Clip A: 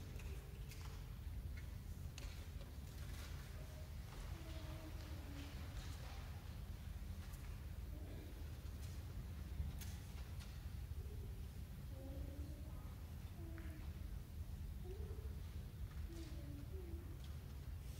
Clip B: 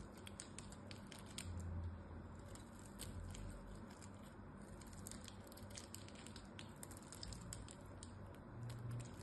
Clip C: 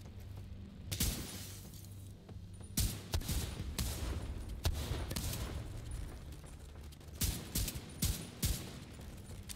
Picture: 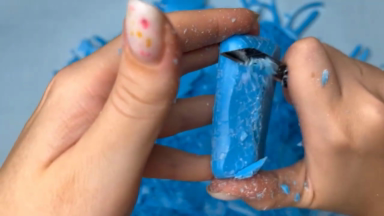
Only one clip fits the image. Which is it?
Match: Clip B